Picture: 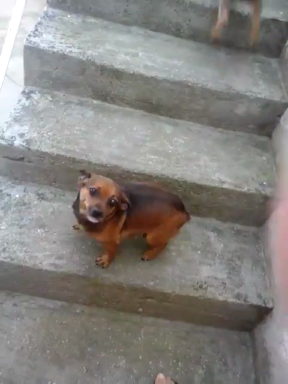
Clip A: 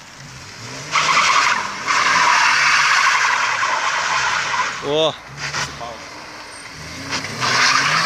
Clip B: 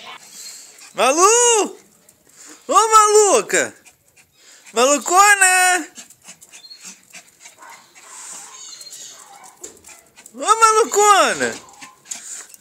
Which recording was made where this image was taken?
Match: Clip B